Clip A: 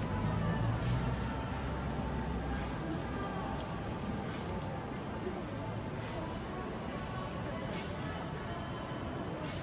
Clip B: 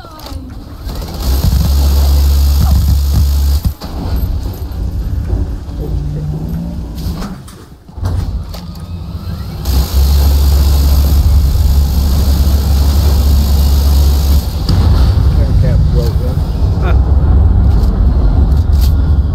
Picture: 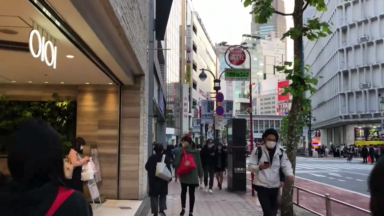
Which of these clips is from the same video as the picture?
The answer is A